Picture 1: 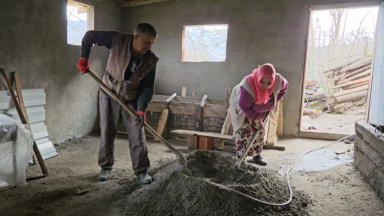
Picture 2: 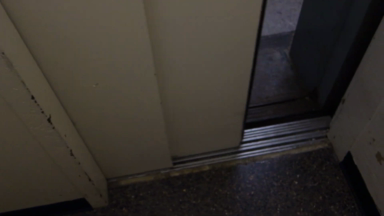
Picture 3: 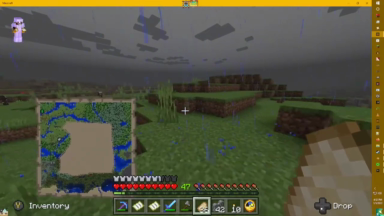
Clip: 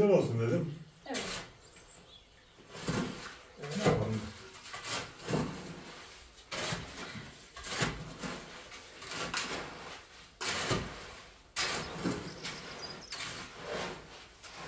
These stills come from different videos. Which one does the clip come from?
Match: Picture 1